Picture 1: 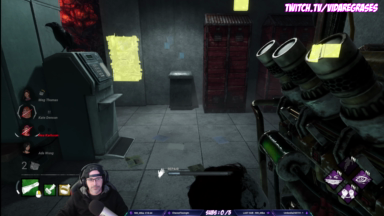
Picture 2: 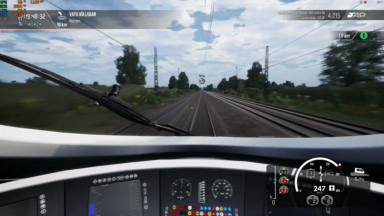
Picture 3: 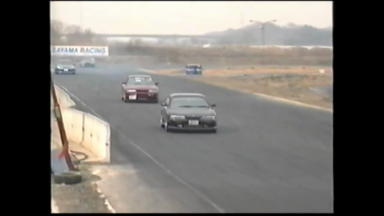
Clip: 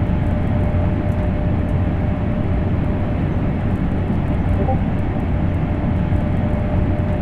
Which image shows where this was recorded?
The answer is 2